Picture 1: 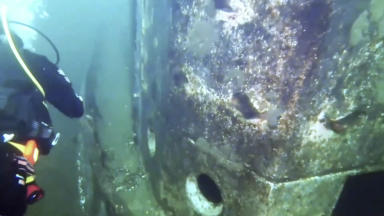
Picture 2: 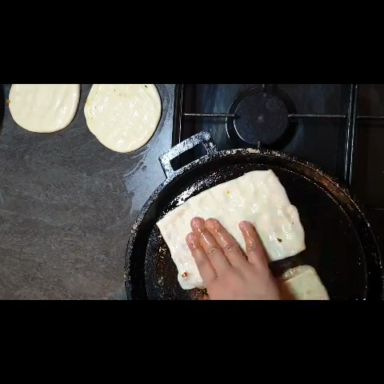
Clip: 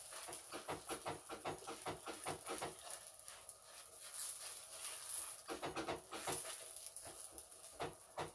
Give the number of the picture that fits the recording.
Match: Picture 2